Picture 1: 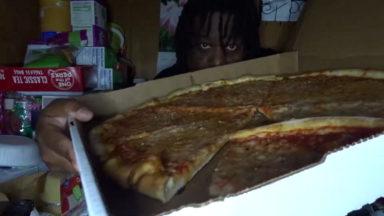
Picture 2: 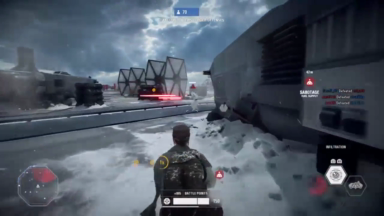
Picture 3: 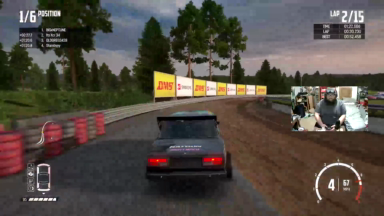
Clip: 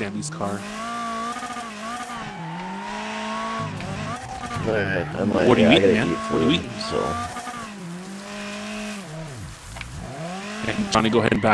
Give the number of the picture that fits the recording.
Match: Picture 3